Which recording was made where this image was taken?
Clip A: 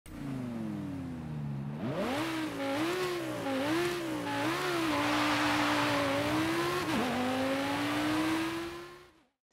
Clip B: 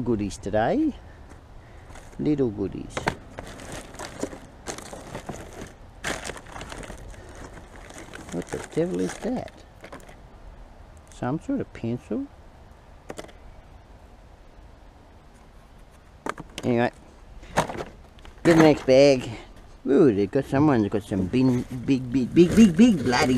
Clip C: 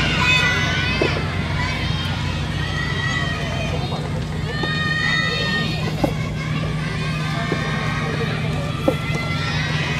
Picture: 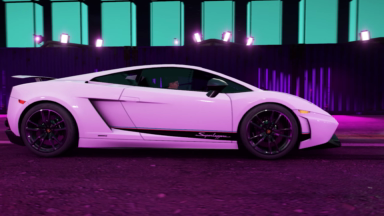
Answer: A